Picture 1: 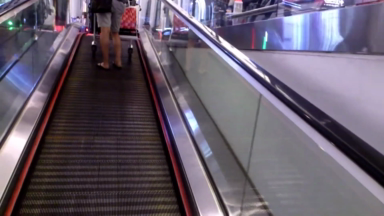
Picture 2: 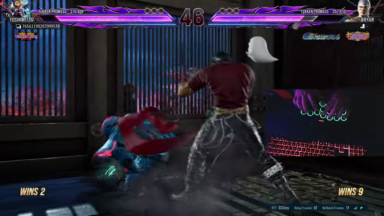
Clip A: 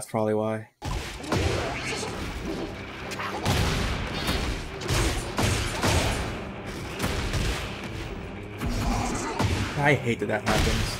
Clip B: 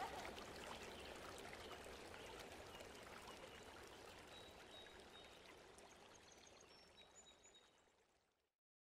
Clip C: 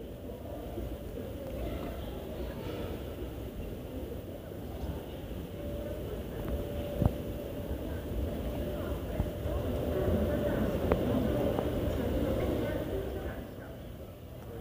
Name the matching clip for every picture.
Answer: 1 C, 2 A